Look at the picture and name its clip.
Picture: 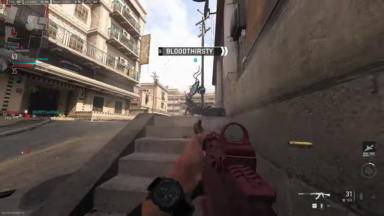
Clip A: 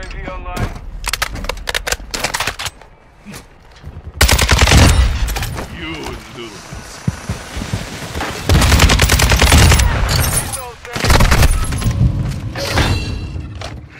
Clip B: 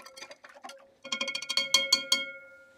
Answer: A